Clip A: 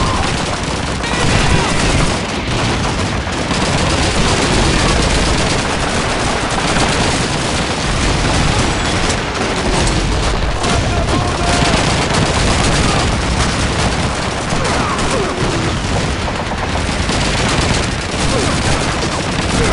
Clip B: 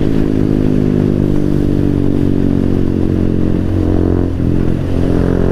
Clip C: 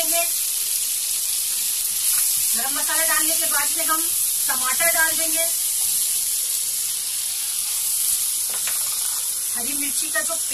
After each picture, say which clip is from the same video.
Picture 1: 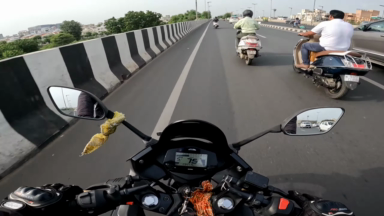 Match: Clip B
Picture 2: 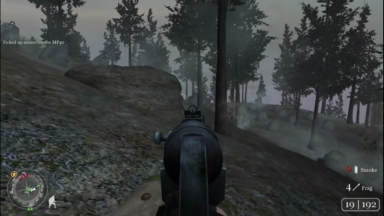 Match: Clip A